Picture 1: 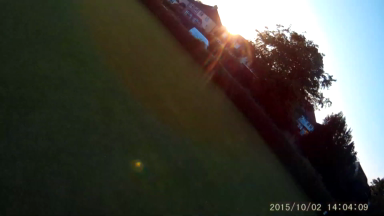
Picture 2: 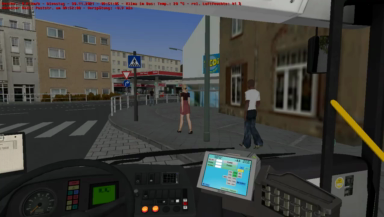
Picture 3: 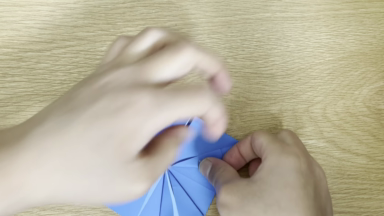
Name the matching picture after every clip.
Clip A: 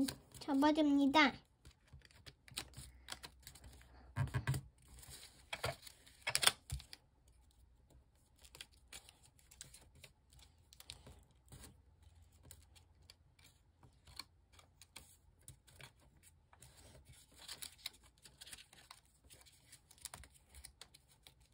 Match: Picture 3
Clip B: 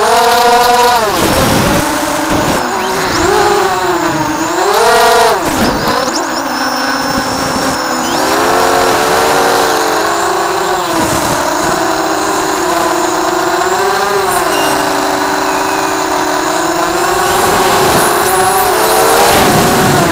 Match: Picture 1